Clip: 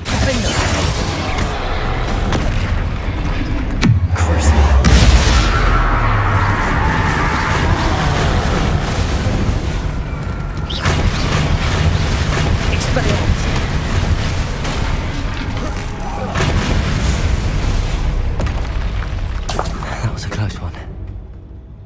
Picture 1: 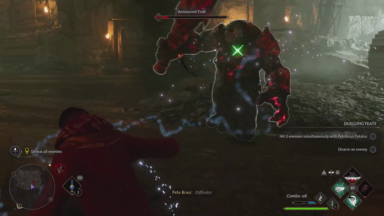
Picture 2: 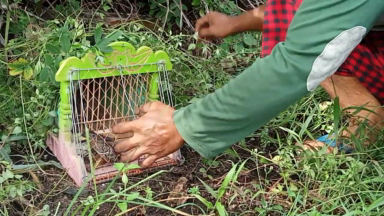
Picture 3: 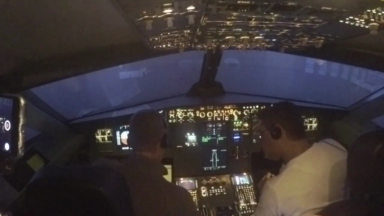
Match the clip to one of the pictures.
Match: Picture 1